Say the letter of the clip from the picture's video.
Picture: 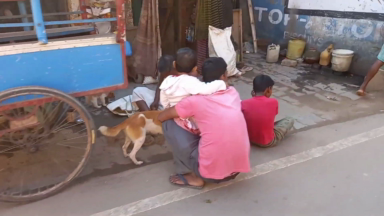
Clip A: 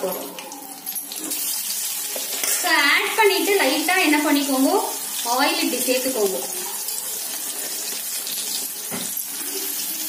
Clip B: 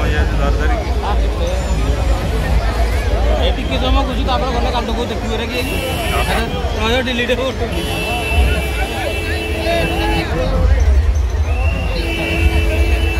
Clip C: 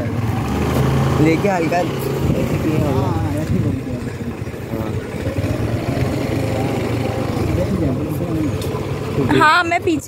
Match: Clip C